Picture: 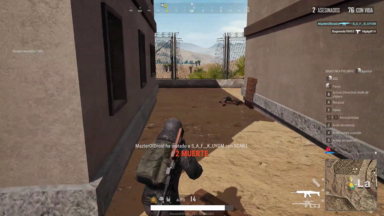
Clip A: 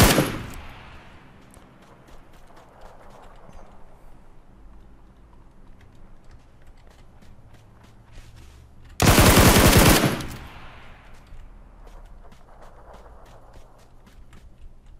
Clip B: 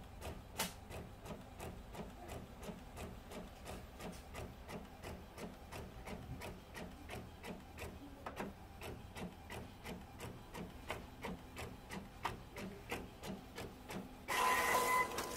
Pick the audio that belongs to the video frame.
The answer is A